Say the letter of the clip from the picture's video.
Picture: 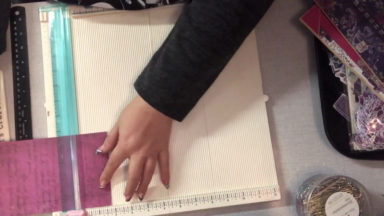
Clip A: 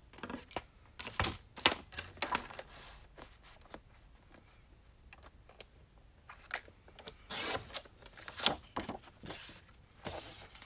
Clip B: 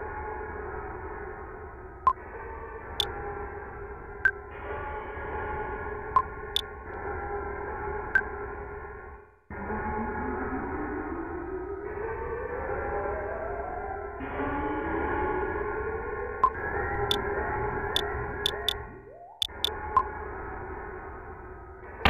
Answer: A